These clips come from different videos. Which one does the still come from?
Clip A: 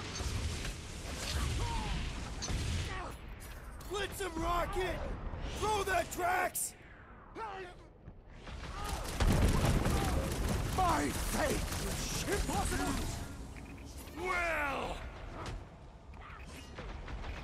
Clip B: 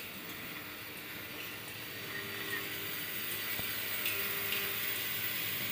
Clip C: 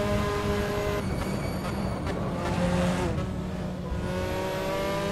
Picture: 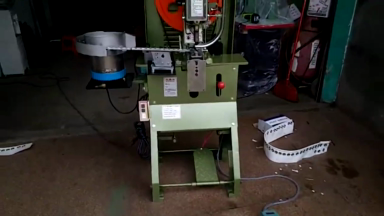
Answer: B